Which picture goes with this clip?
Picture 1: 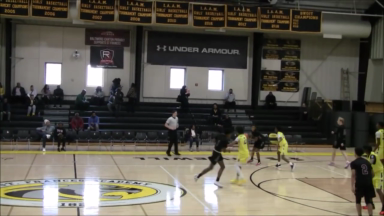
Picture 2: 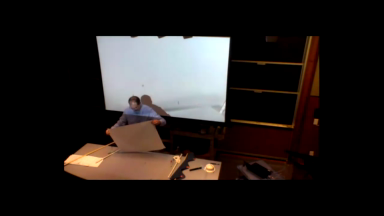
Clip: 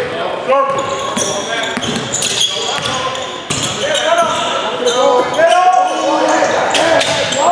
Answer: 1